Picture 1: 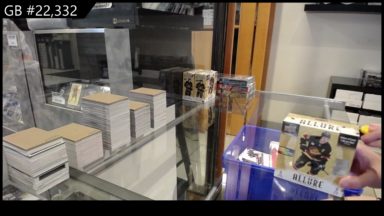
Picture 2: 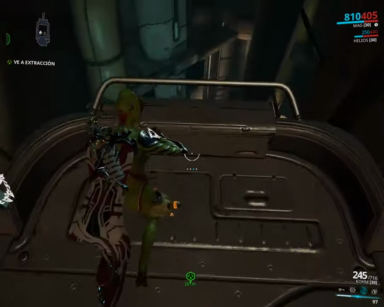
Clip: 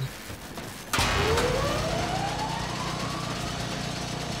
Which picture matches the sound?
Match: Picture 2